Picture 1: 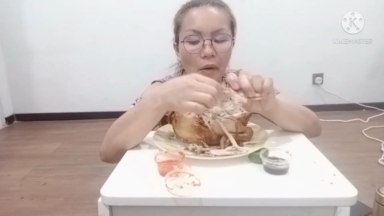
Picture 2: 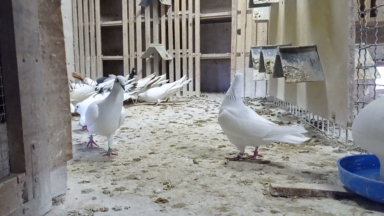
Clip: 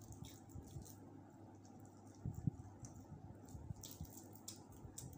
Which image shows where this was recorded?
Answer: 1